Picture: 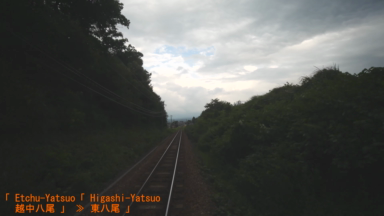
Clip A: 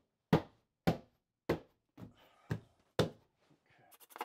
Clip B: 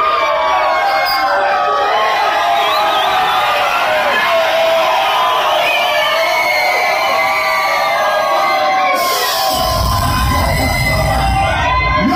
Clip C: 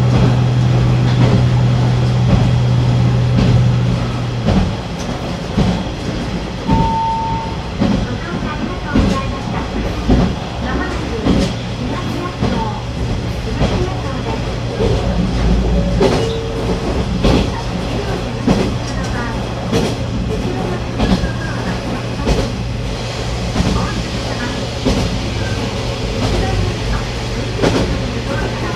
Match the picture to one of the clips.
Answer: C